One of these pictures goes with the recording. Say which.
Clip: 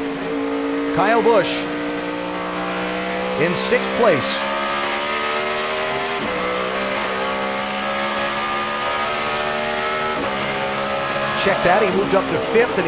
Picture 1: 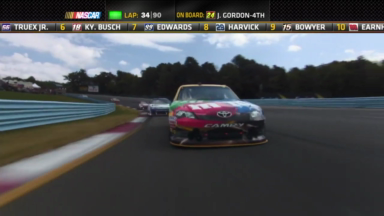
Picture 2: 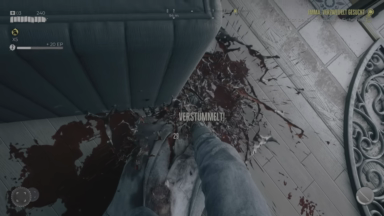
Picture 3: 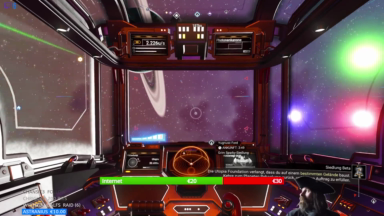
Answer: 1